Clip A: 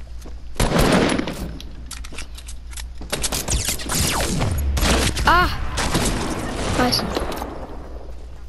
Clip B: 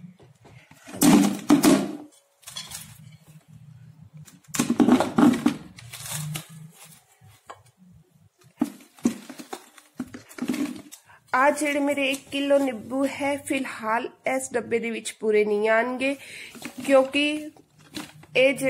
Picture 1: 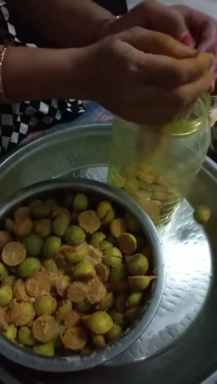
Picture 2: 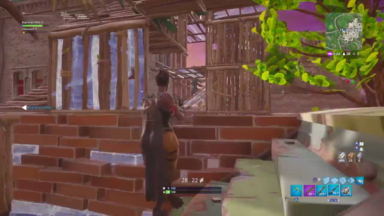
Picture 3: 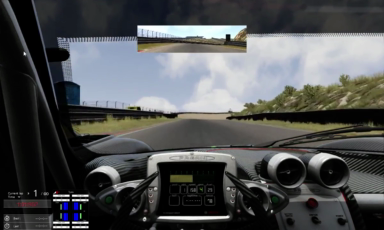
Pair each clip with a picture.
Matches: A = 2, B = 1